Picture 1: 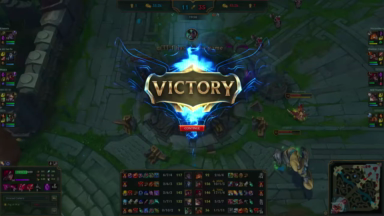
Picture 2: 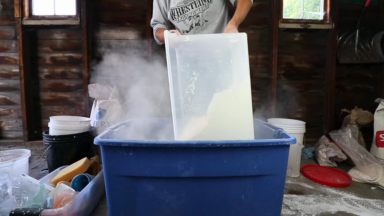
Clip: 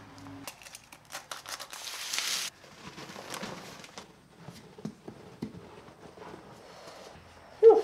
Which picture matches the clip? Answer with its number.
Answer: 2